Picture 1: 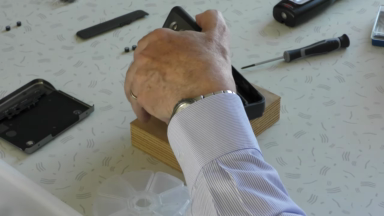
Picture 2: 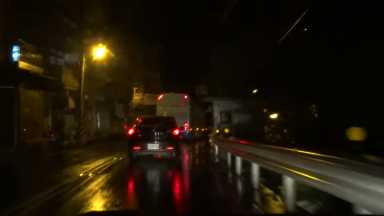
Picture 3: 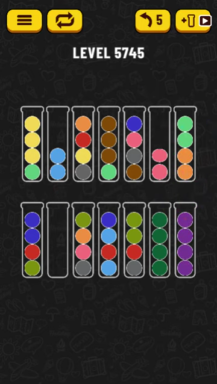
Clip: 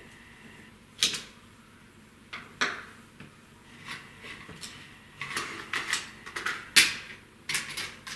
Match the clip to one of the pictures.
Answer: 1